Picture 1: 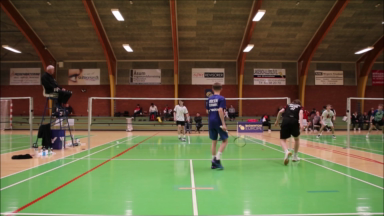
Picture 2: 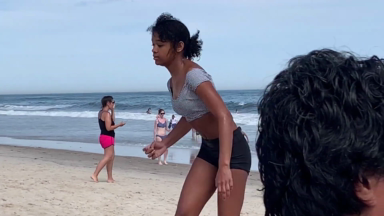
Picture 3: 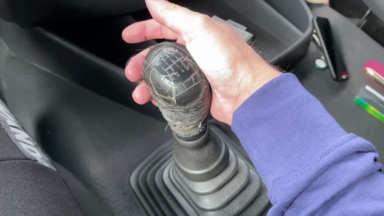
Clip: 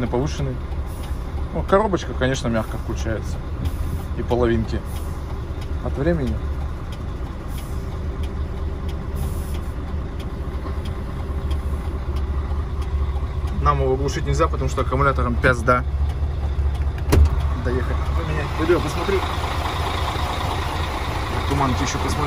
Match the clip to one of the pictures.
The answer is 3